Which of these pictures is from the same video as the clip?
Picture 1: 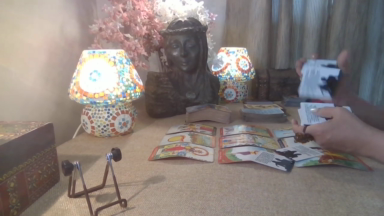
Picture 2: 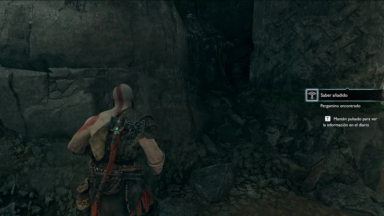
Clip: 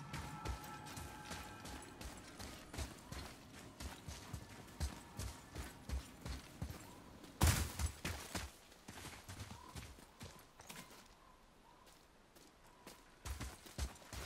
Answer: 2